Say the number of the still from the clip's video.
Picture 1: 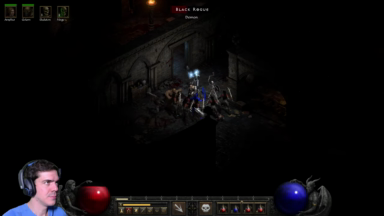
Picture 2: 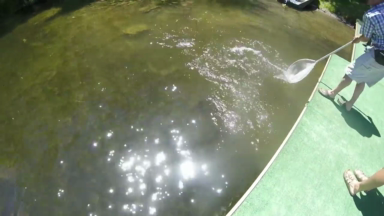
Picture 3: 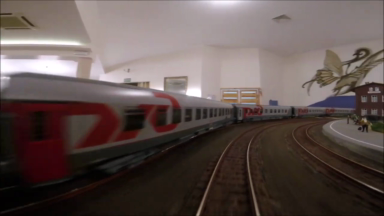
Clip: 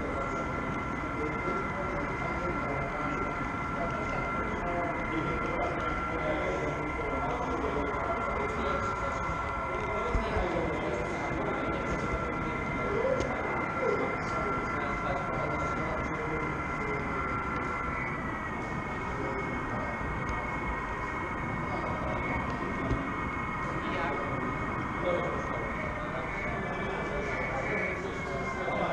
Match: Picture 3